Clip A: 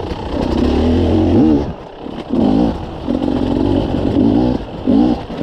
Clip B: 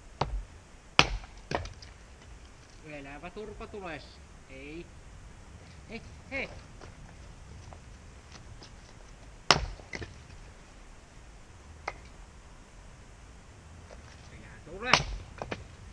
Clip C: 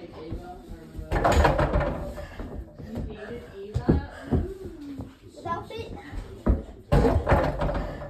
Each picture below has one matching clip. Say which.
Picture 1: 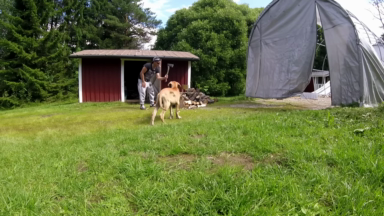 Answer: B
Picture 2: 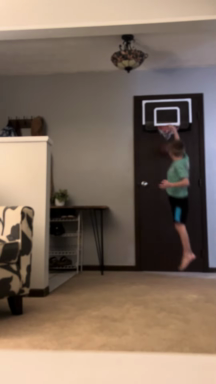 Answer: C